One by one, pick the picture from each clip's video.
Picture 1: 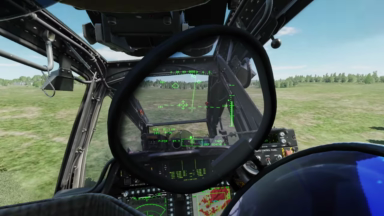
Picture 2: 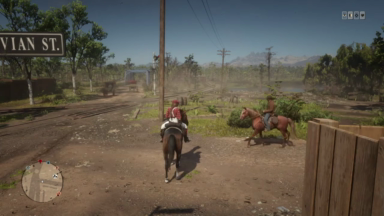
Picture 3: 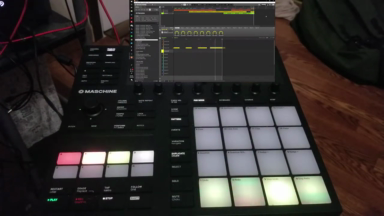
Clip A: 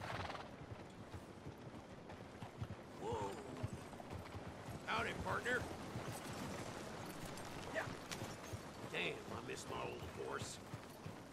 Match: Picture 2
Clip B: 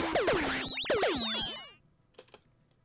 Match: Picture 3